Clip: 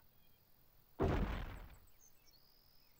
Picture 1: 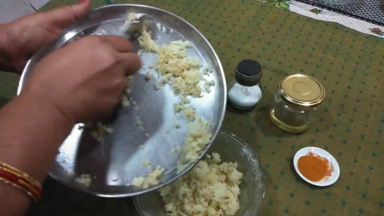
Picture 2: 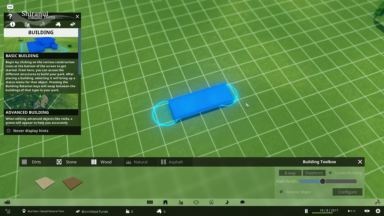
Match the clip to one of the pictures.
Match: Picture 2